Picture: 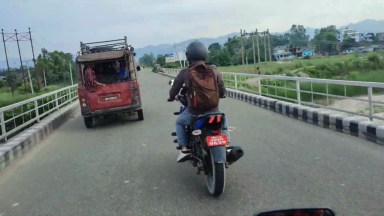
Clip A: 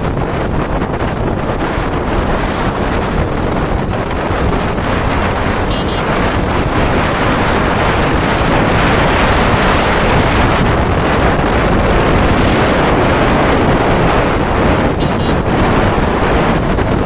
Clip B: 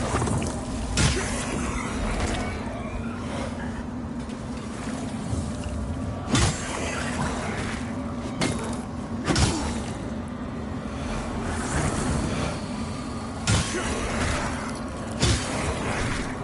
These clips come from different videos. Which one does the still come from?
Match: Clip A